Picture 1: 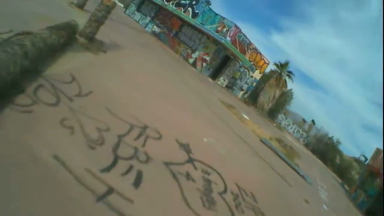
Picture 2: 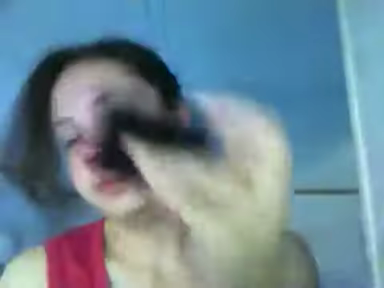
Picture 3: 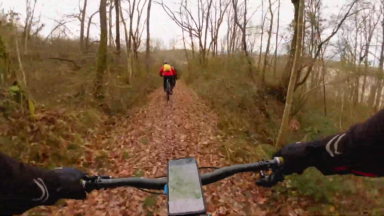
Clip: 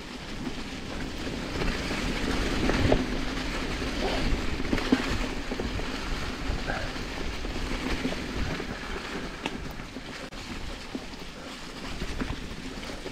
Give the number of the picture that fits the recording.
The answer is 3